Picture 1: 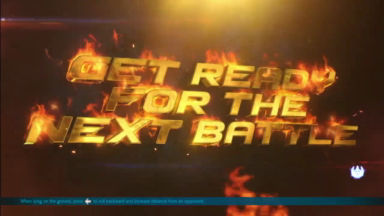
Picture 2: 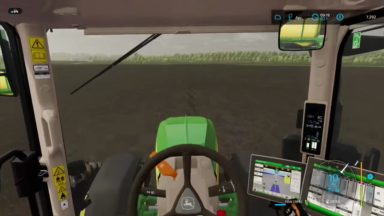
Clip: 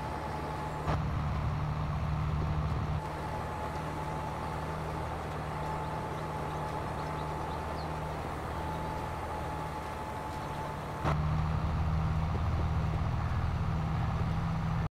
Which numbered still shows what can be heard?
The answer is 2